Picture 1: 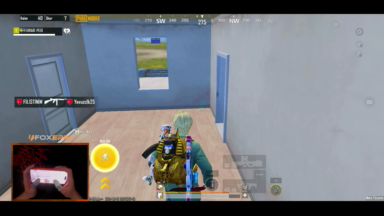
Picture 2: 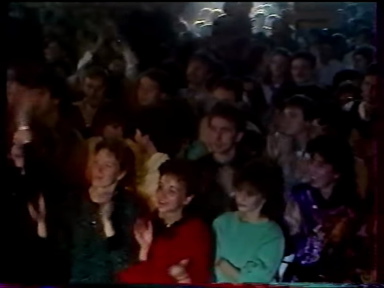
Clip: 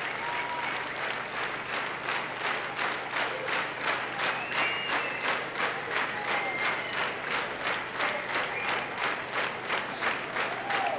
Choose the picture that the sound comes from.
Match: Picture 2